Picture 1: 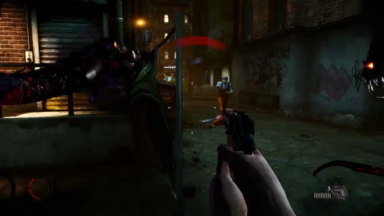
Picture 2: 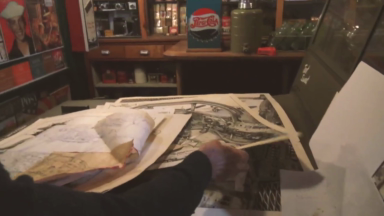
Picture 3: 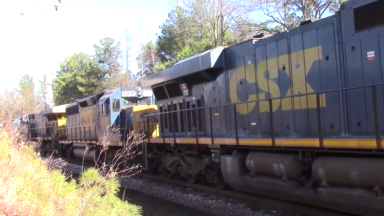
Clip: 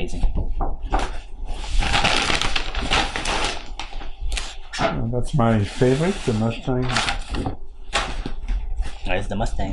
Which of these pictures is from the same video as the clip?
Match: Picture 2